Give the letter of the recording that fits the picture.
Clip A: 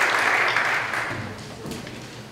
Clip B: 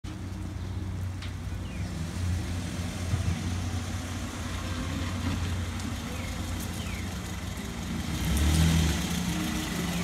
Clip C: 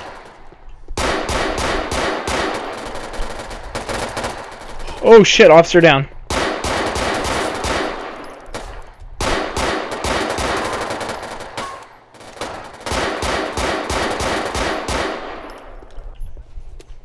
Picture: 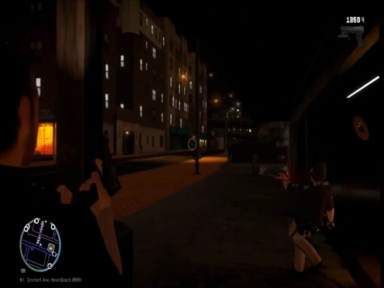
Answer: C